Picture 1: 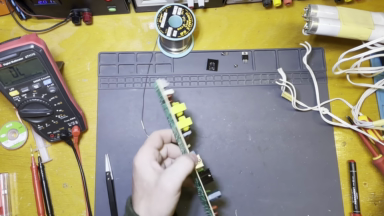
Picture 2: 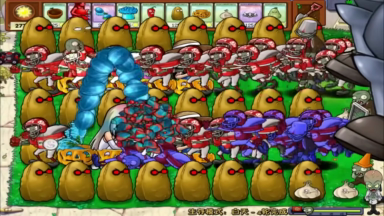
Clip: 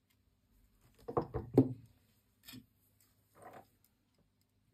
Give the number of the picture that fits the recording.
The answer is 1